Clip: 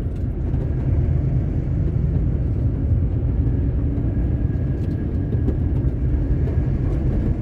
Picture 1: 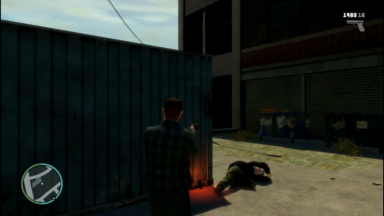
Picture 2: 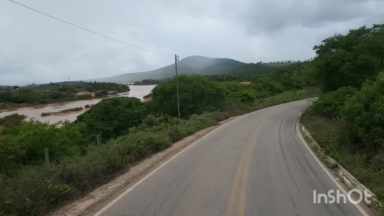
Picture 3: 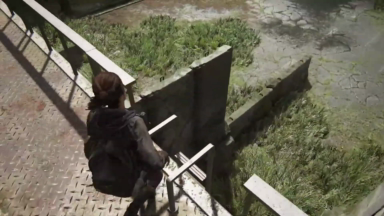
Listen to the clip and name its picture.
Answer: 2